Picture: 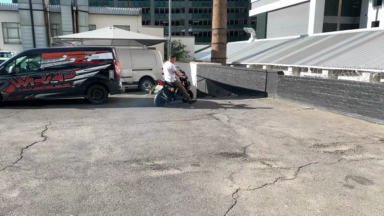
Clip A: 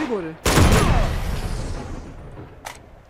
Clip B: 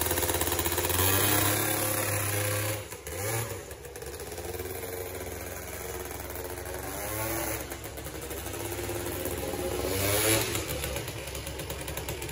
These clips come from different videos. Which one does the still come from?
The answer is B